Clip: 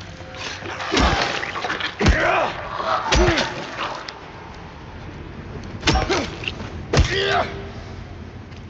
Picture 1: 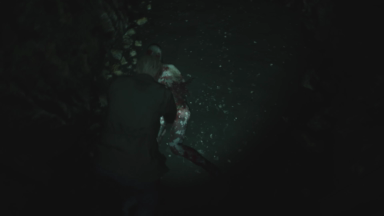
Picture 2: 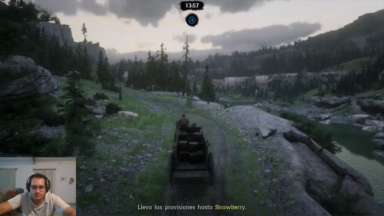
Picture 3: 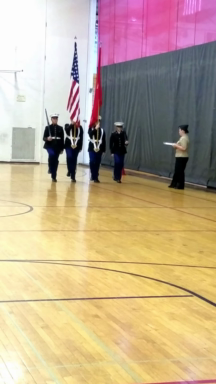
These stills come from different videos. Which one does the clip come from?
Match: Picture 1